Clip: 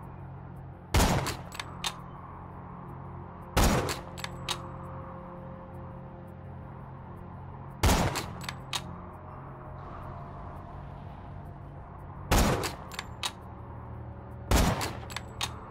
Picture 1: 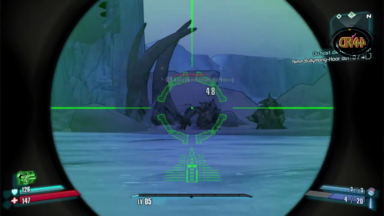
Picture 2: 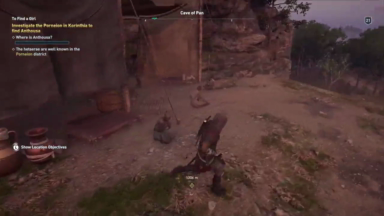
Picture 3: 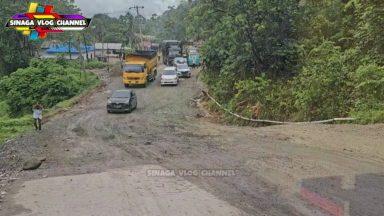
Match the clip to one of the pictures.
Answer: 1